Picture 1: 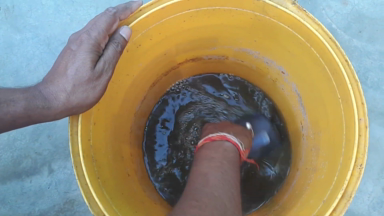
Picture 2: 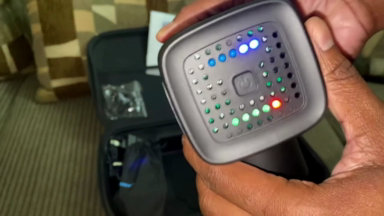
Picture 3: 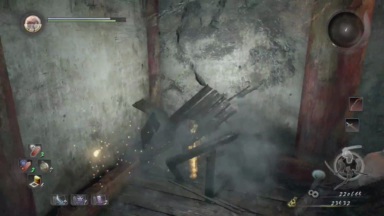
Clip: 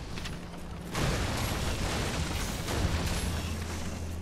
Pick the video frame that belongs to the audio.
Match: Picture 3